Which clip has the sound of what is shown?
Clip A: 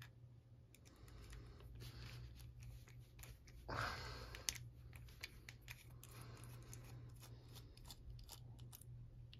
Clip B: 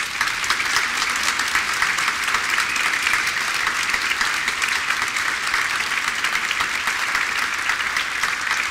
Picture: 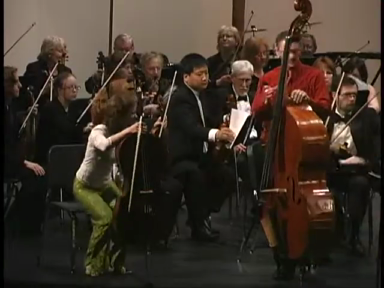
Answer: B